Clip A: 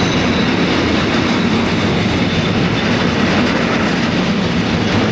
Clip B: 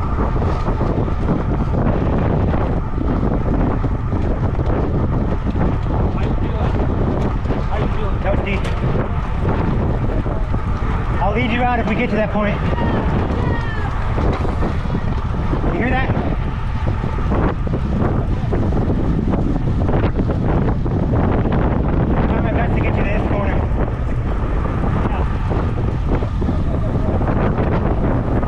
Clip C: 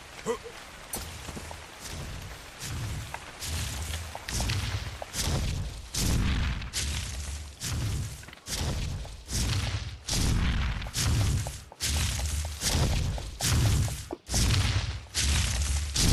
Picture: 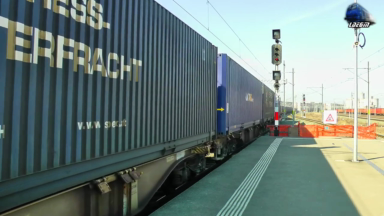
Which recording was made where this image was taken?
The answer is A